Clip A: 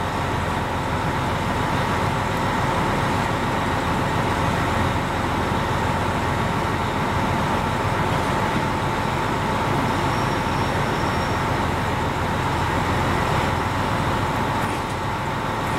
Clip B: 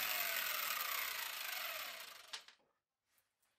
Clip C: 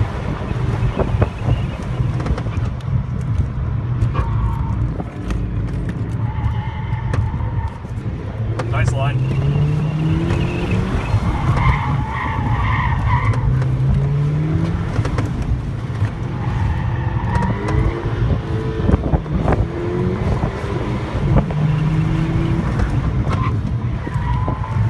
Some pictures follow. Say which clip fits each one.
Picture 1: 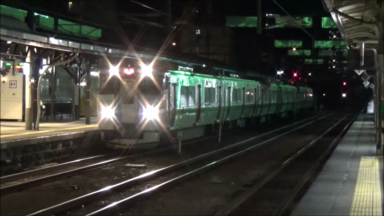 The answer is A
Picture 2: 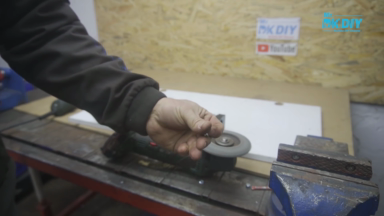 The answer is B